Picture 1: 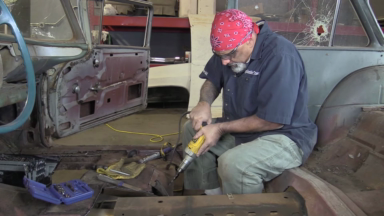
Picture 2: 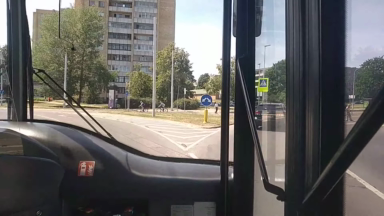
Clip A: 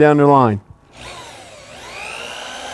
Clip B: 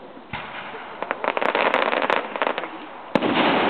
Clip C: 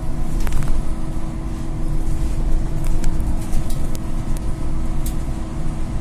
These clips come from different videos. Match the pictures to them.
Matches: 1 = A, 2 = C